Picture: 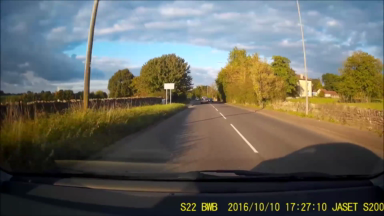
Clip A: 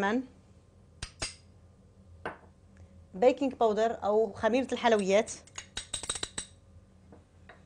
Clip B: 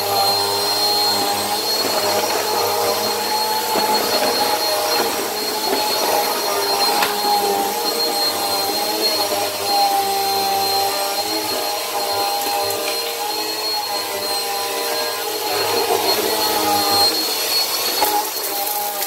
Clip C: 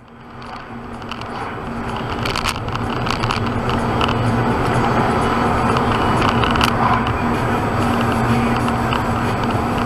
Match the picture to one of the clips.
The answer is C